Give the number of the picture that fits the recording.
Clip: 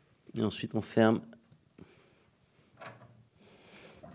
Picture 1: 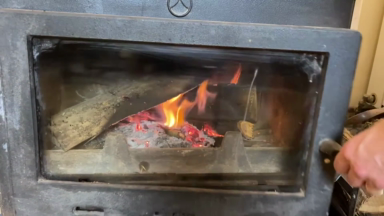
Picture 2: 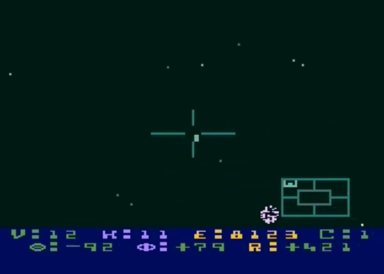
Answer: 1